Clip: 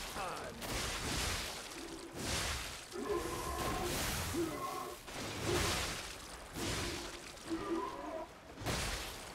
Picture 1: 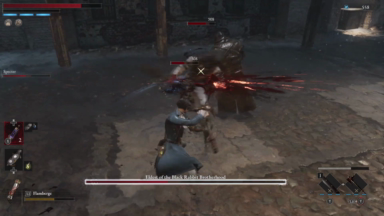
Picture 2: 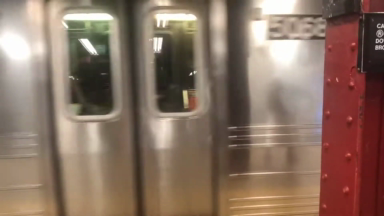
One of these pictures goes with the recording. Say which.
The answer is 1